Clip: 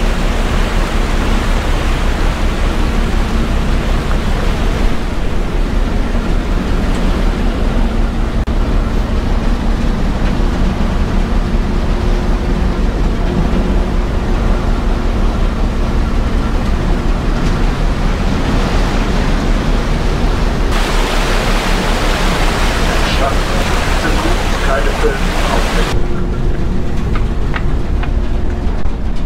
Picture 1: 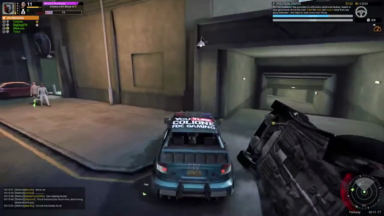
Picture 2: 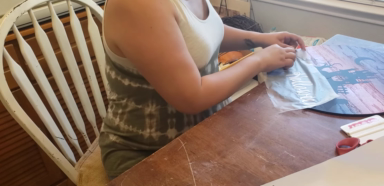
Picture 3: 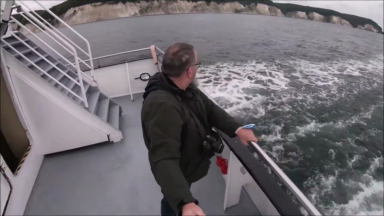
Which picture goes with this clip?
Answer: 3